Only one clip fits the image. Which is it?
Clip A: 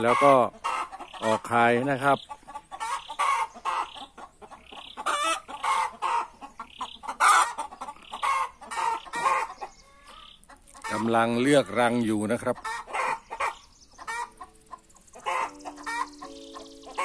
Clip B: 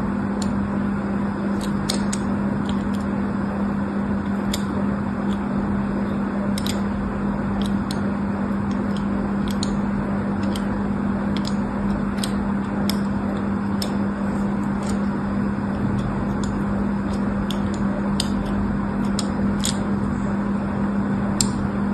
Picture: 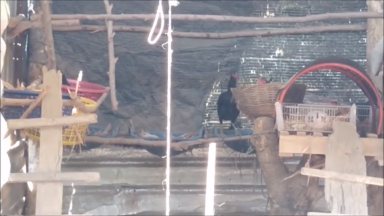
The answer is A